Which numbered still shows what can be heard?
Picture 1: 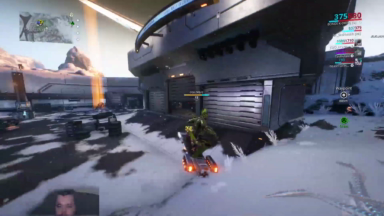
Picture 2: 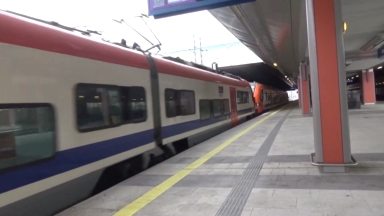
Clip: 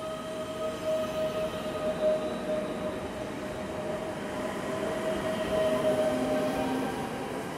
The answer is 2